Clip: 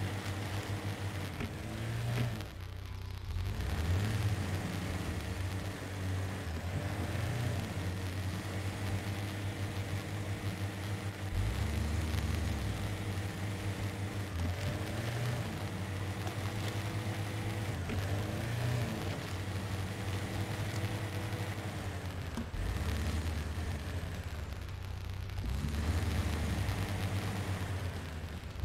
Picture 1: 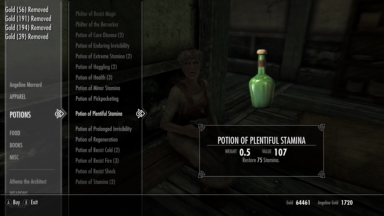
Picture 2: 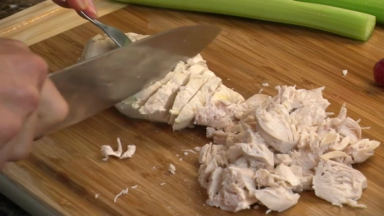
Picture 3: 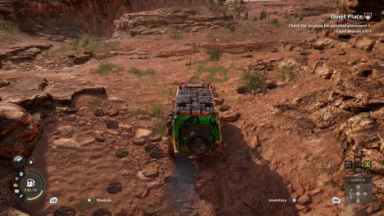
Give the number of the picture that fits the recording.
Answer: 3